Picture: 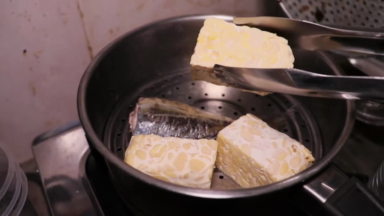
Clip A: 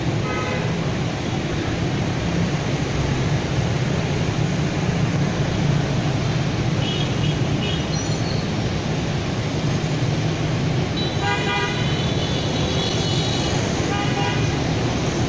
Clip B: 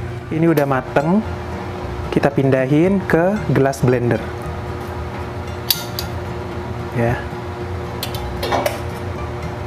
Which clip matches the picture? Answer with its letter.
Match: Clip B